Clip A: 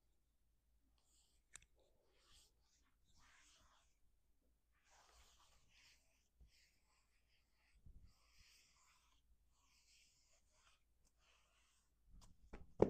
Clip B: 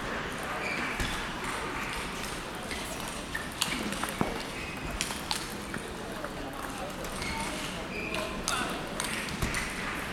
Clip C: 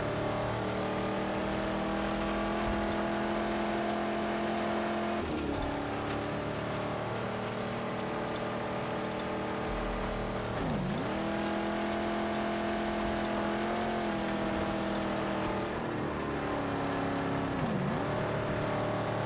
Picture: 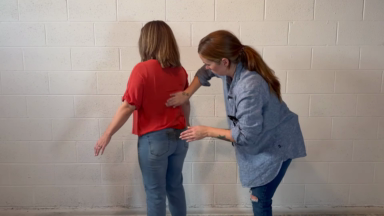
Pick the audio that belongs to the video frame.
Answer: A